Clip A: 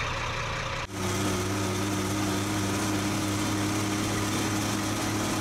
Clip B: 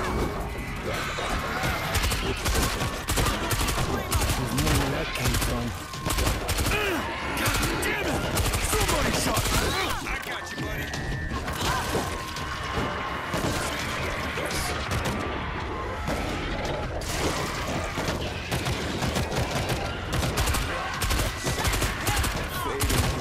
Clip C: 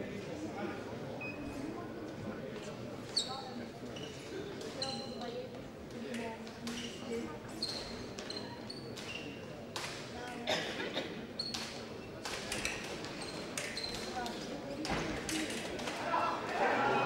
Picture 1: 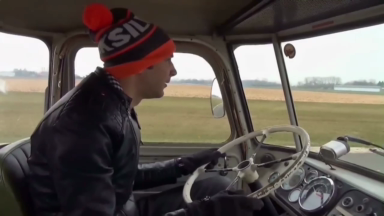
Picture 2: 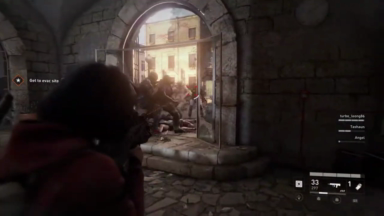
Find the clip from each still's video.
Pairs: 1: A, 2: B